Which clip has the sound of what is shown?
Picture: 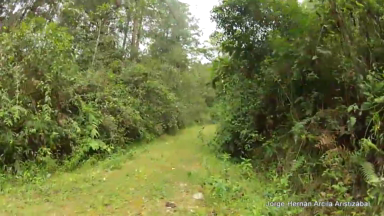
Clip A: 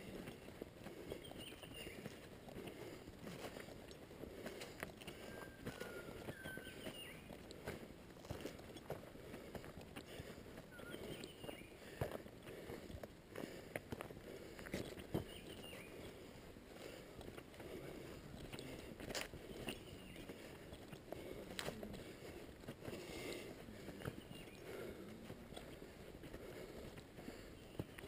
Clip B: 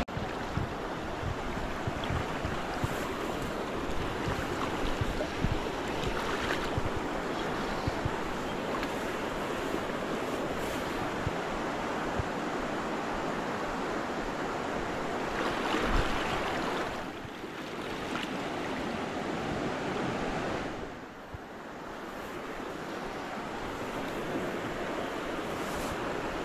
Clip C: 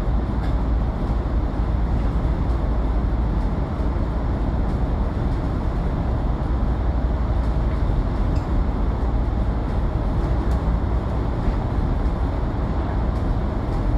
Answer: A